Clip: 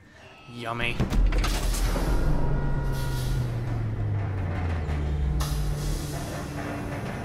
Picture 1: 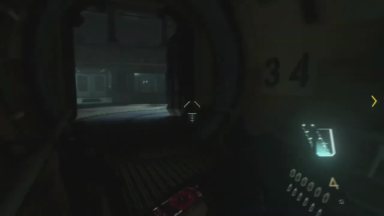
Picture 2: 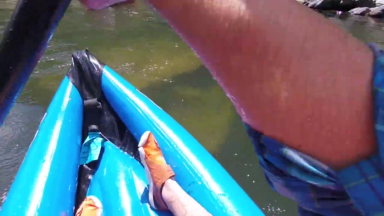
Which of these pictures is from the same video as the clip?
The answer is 1